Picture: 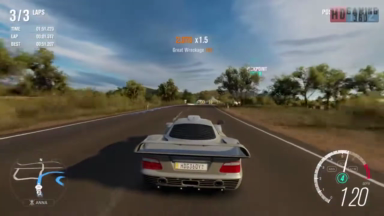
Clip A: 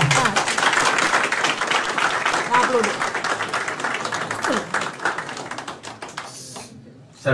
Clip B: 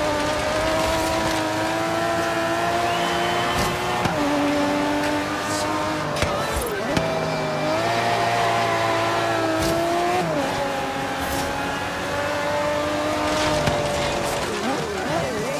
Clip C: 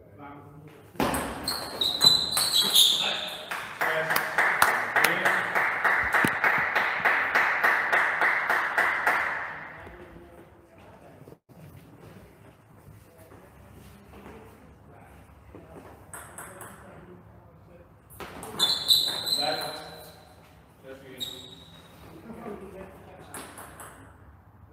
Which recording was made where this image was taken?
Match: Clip B